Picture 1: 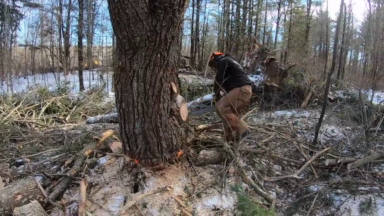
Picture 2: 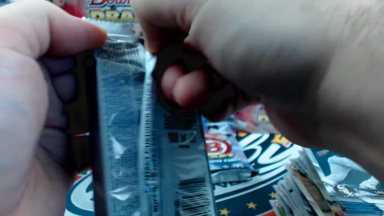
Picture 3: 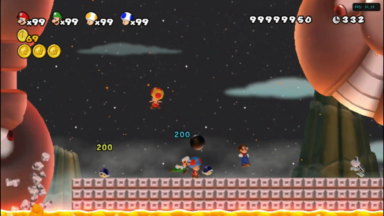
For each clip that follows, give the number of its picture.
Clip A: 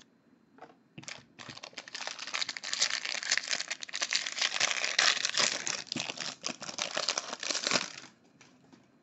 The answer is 2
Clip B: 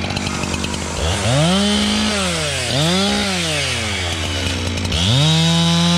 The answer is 1